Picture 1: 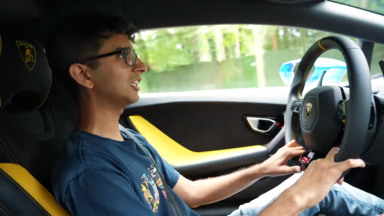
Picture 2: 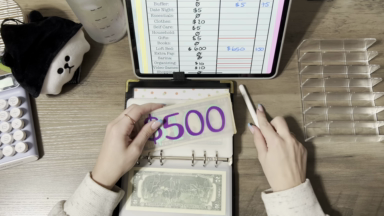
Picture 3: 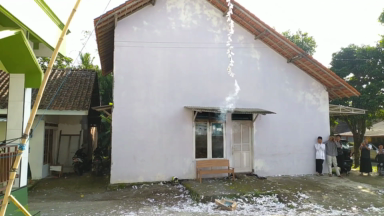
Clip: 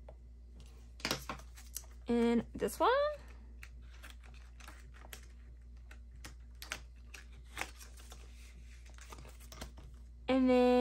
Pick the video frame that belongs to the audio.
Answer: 2